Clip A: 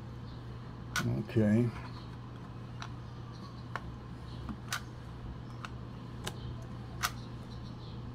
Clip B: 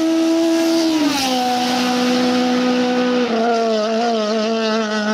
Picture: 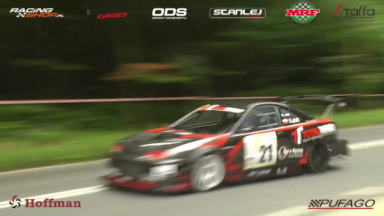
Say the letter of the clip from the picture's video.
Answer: B